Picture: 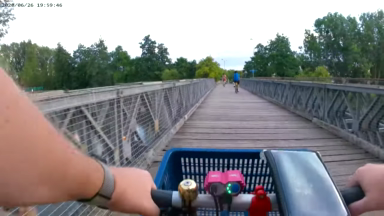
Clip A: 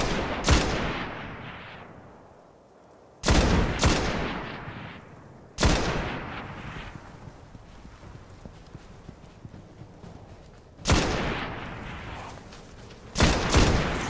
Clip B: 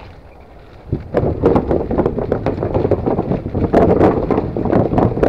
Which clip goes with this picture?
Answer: B